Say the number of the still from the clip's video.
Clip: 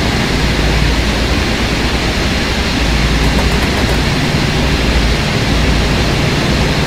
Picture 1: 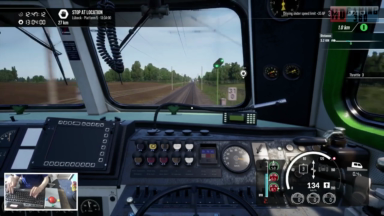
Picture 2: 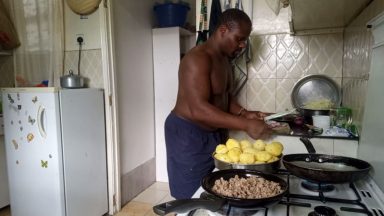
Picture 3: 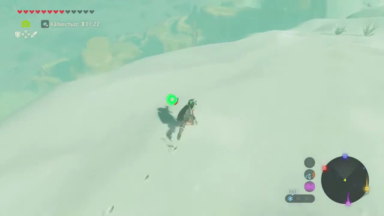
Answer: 1